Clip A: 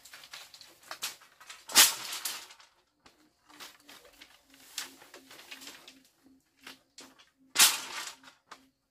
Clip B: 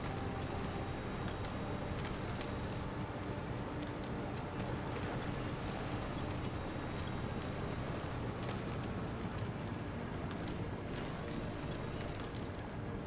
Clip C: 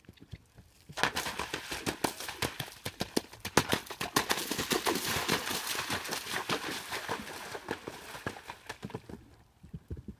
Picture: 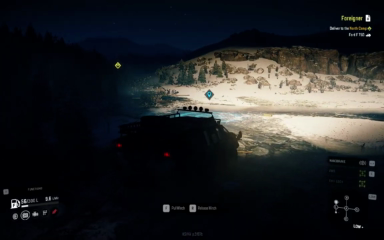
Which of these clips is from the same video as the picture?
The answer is B